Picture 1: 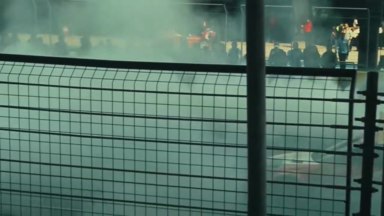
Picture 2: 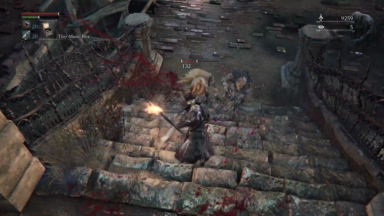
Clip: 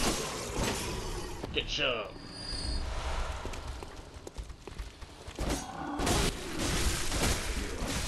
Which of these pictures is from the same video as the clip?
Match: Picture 2